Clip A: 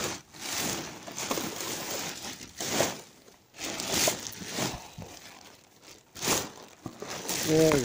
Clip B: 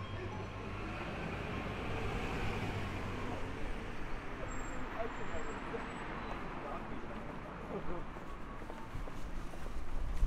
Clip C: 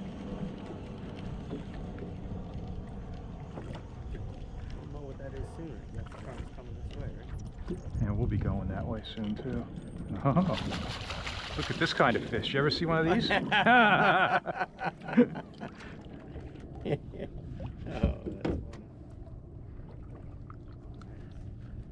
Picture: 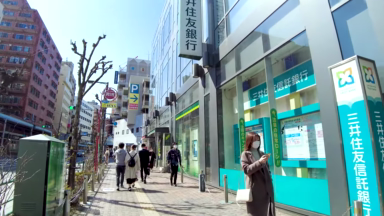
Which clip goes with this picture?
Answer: B